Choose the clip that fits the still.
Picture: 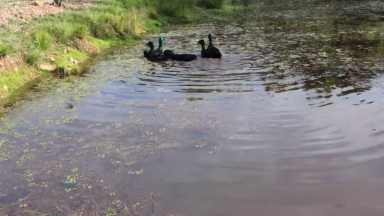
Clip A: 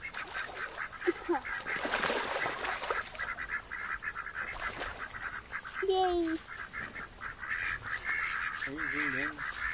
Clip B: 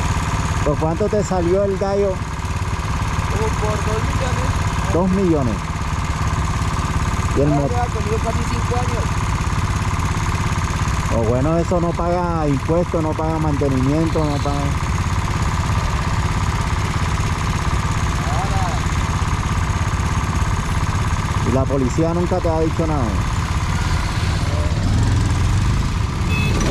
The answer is A